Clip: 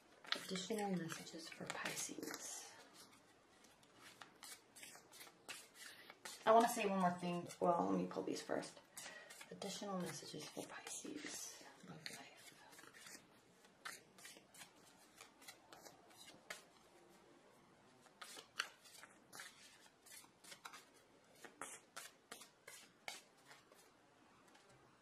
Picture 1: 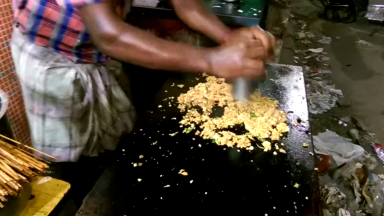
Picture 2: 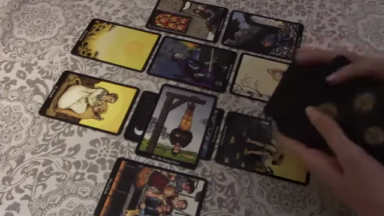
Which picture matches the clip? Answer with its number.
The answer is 2